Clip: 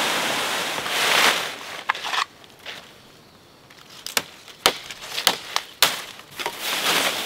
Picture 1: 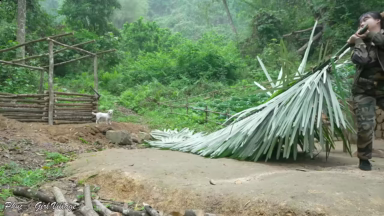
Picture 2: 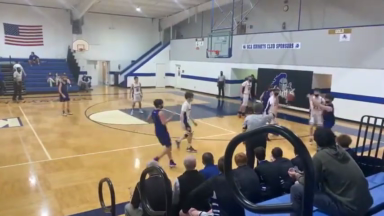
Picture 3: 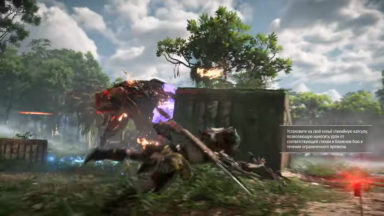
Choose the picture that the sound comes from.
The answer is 1